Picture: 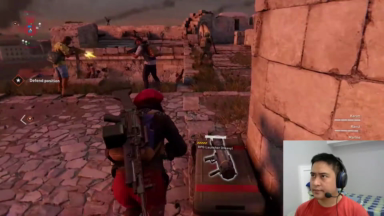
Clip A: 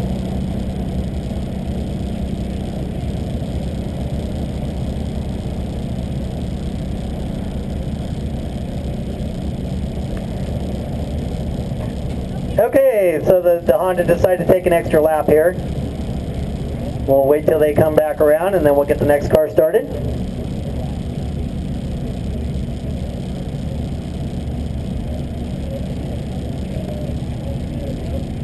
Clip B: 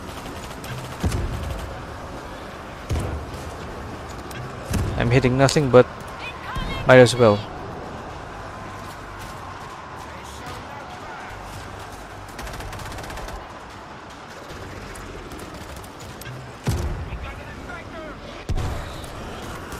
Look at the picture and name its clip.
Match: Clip B